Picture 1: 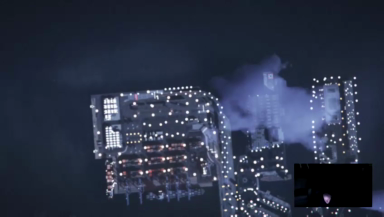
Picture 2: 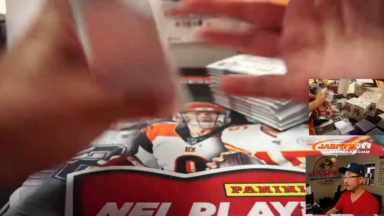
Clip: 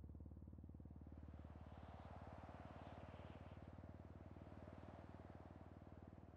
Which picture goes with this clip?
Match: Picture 1